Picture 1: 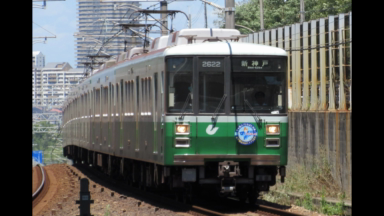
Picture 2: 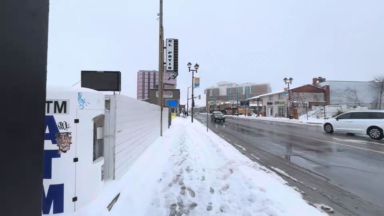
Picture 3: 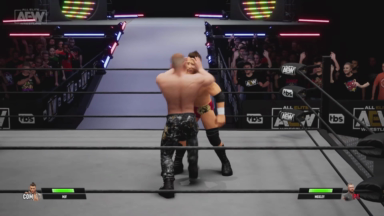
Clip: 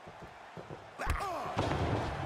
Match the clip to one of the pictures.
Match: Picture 3